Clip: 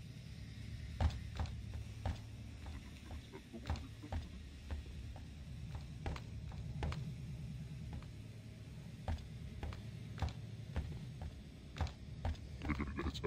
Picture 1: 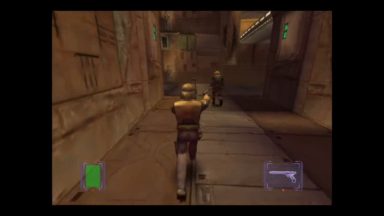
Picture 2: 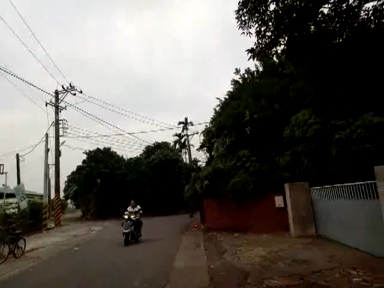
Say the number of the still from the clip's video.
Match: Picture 1